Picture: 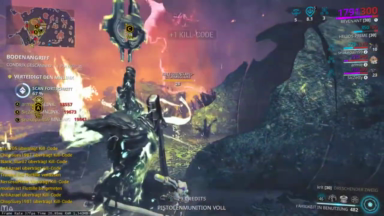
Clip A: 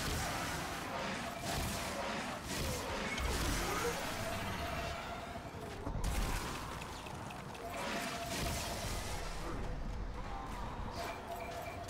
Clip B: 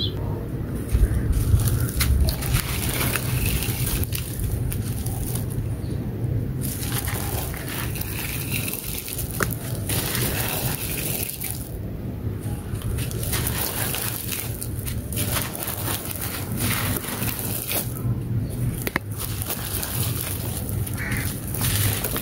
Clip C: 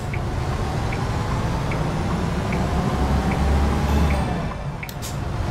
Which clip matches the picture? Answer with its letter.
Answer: A